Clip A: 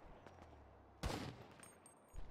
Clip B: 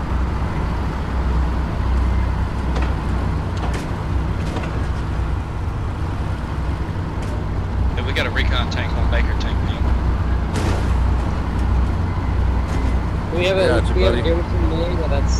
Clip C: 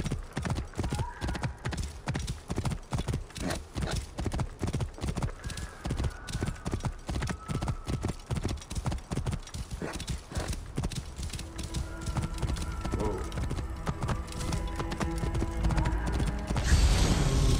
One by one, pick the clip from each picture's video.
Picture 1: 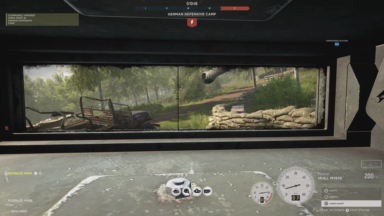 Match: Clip B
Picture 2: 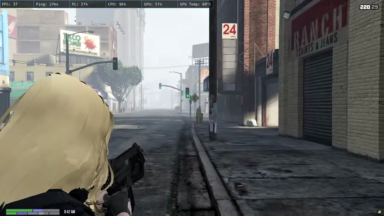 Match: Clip A